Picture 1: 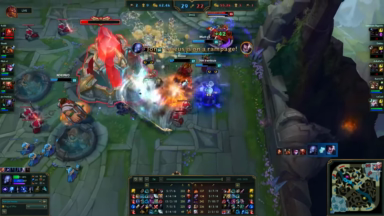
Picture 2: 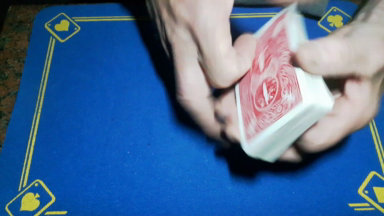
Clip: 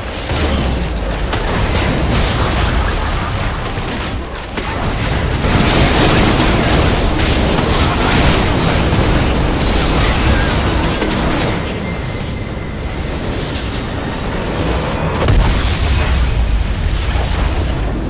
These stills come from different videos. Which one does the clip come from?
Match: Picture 1